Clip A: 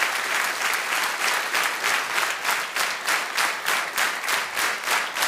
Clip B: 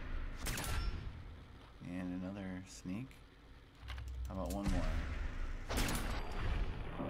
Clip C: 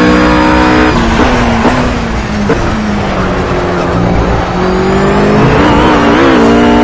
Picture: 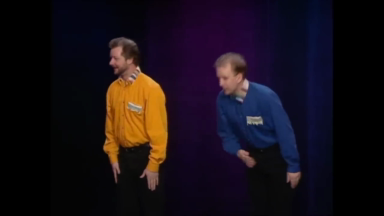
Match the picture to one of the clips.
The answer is A